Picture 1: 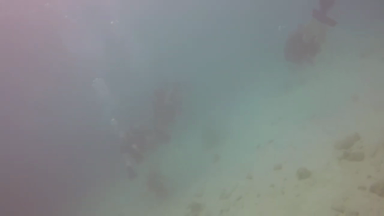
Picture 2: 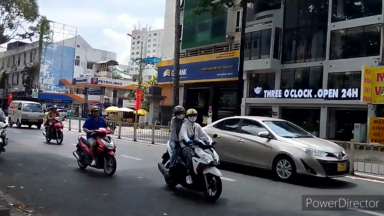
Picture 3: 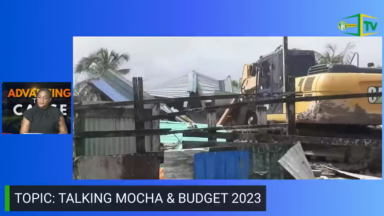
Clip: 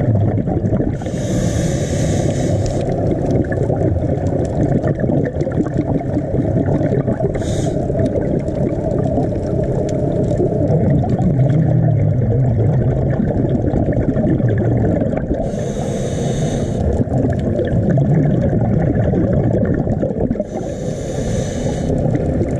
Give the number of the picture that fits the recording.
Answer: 1